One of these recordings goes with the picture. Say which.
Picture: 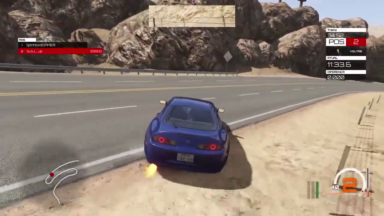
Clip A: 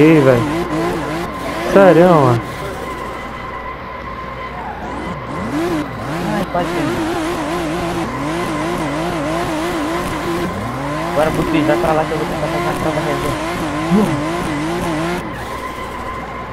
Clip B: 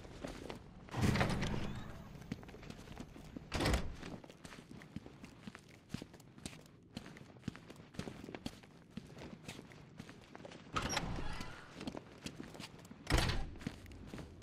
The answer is A